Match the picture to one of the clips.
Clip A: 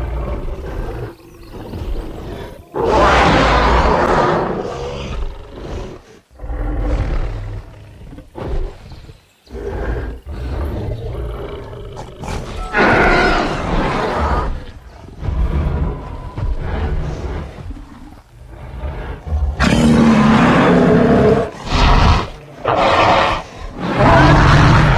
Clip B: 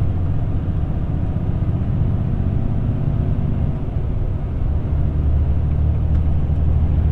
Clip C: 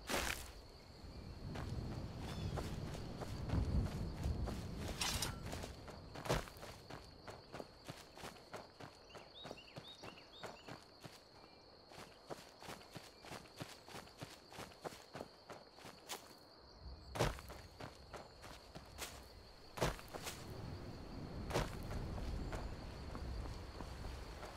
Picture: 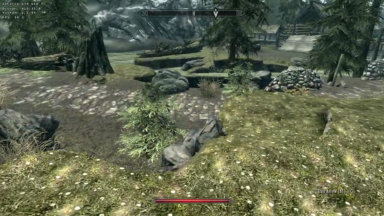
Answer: C